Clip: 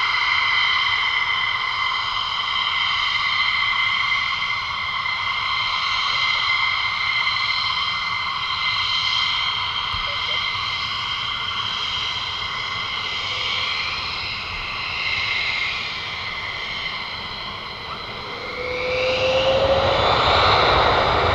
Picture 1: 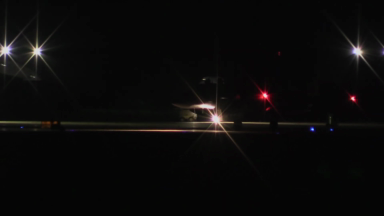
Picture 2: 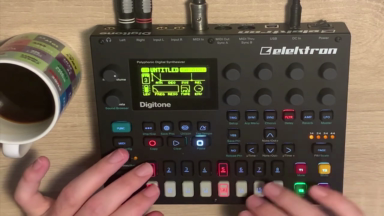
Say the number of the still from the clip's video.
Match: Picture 1